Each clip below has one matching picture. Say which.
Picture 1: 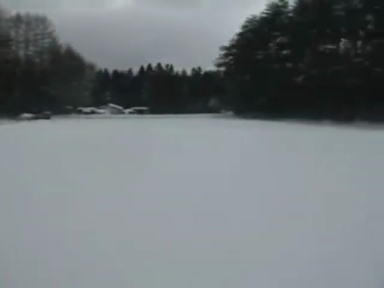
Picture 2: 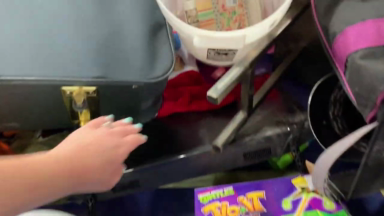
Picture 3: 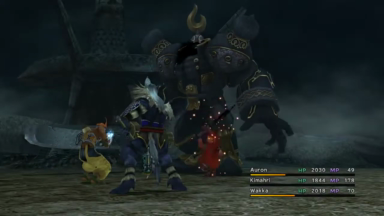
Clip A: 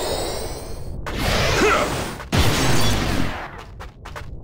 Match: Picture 3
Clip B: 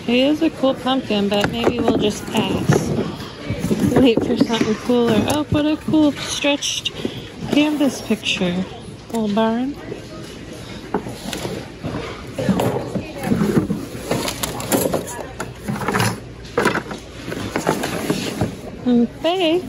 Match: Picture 2